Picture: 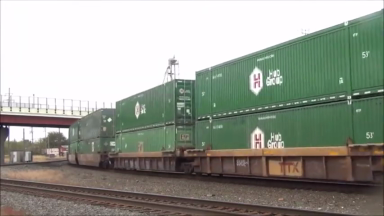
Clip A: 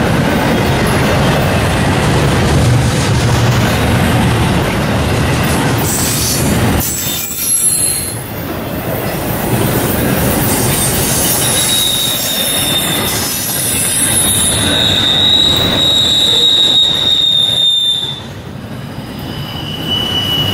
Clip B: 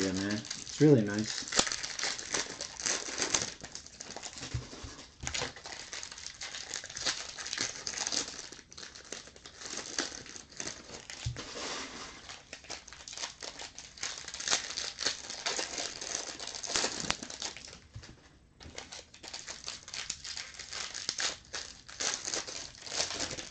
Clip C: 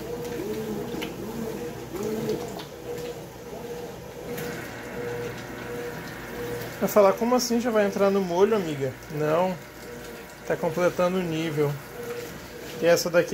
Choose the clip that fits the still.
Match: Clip A